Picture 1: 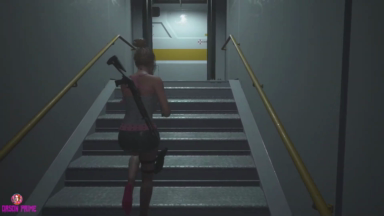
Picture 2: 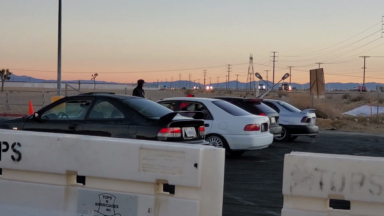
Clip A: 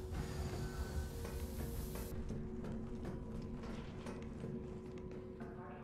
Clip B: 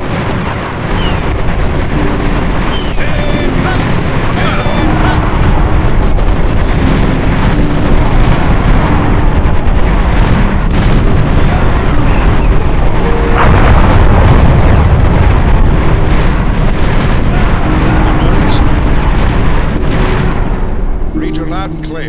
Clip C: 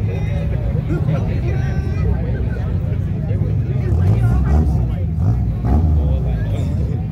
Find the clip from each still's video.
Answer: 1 A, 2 C